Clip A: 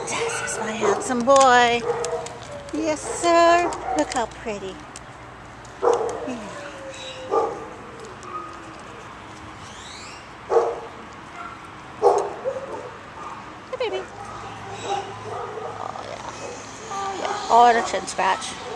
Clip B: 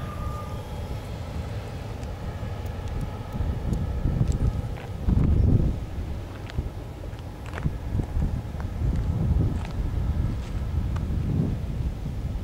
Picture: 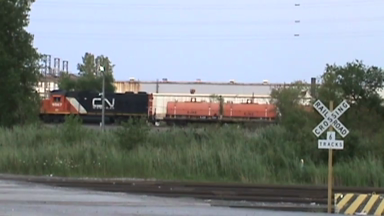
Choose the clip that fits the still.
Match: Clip B